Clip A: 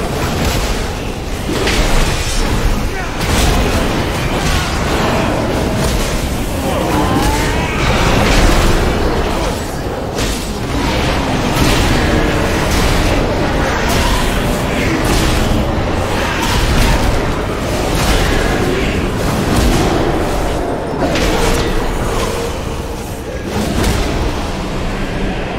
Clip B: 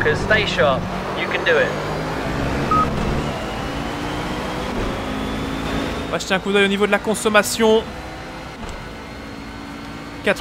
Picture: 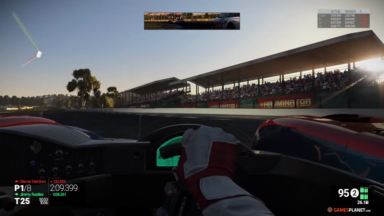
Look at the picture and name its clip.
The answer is B